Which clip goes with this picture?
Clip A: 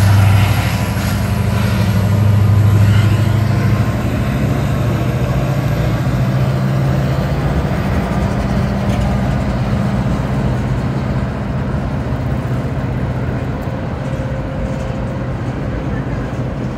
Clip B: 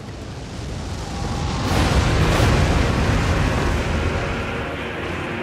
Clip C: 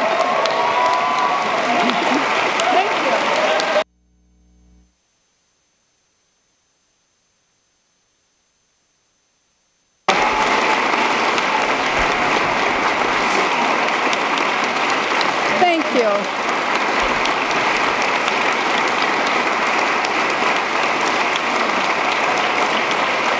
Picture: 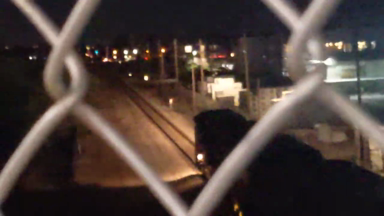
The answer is A